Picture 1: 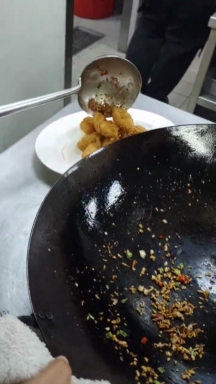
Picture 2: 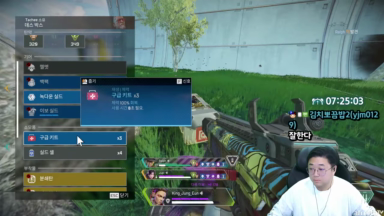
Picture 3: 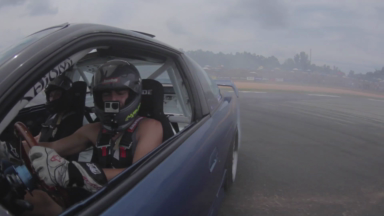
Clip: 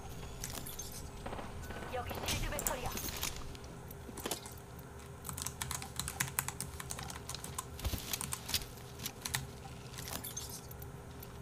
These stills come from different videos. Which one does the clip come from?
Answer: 2